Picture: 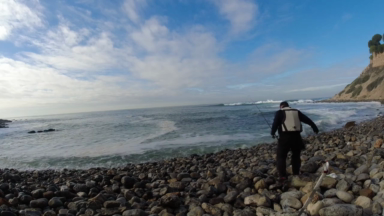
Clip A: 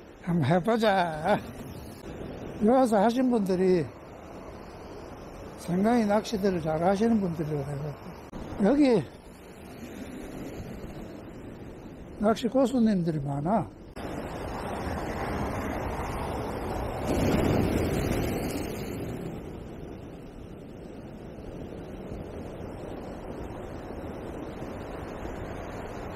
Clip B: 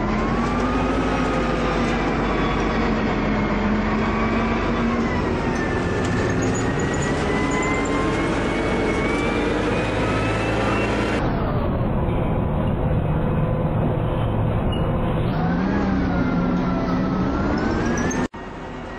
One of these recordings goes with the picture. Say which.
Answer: A